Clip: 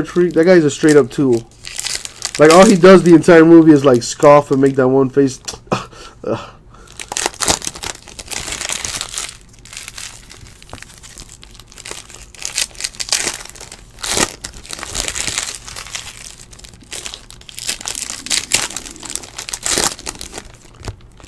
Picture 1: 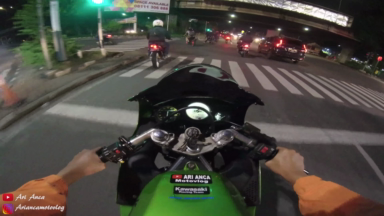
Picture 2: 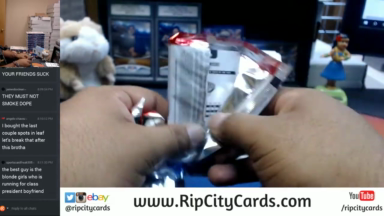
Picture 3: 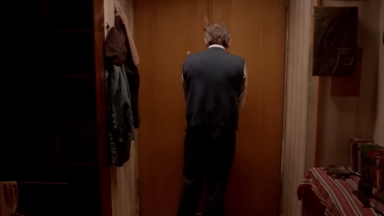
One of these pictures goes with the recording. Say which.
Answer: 2